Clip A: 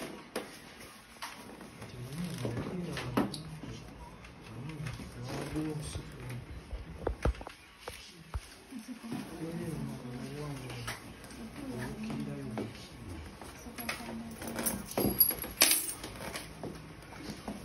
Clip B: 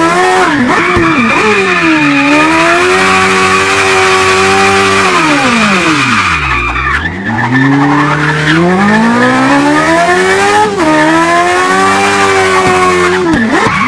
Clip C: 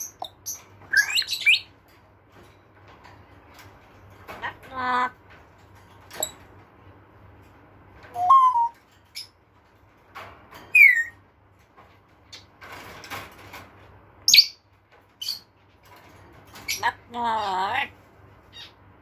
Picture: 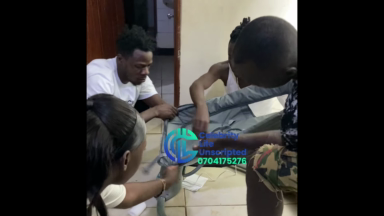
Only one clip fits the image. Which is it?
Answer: A